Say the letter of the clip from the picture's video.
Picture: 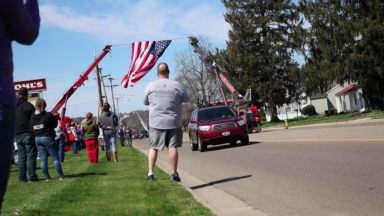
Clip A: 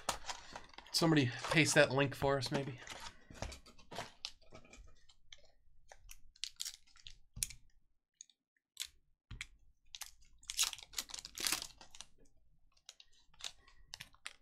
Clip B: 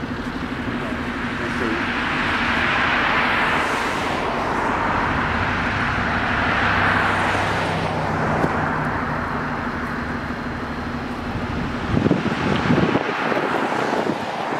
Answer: B